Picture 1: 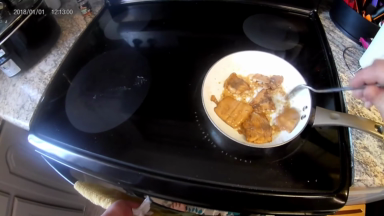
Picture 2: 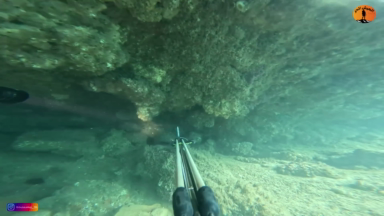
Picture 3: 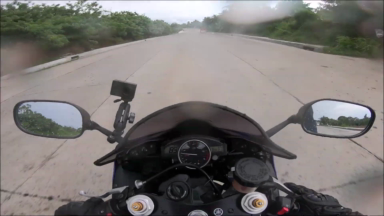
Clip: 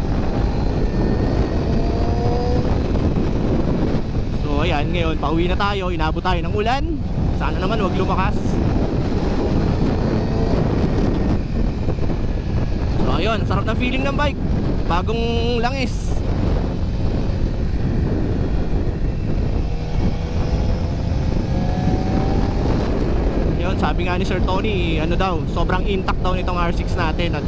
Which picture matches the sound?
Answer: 3